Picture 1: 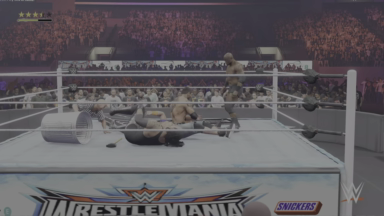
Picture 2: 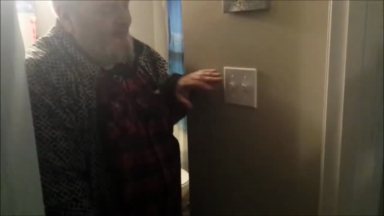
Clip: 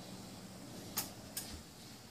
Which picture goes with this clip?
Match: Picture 2